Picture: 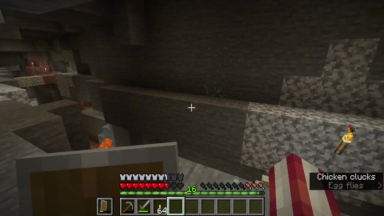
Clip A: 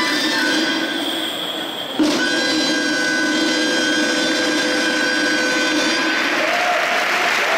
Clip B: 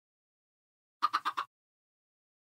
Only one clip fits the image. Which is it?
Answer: B